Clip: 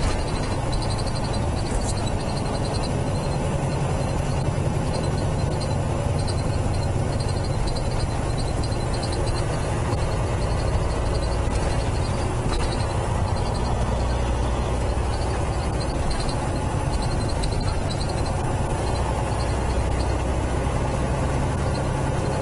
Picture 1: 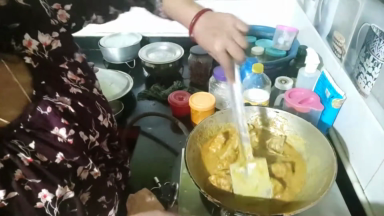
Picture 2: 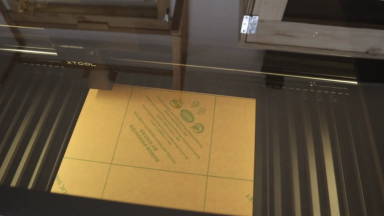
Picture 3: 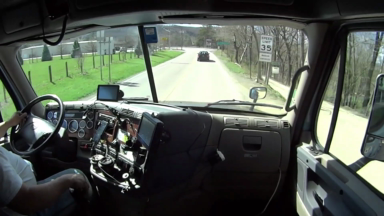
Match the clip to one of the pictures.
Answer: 3